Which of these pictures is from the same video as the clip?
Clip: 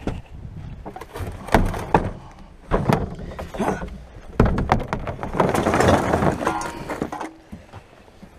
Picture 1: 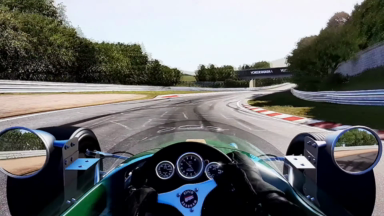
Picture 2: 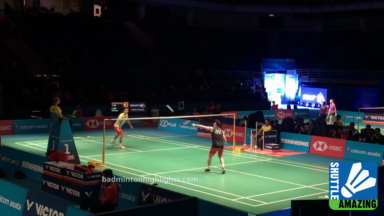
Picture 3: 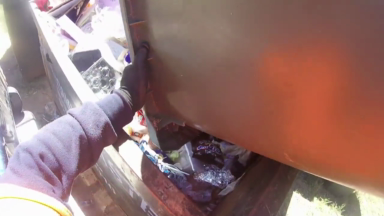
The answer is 3